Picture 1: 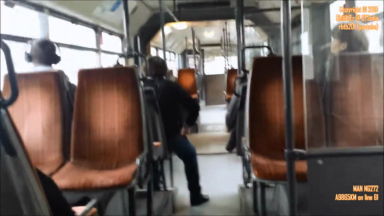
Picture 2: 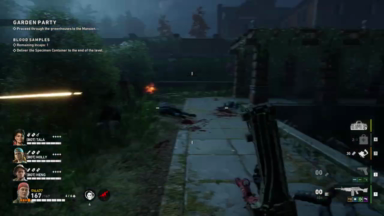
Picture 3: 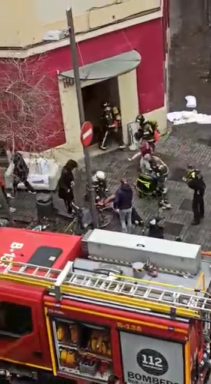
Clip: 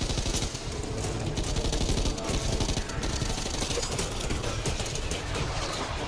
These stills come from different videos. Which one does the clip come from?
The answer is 2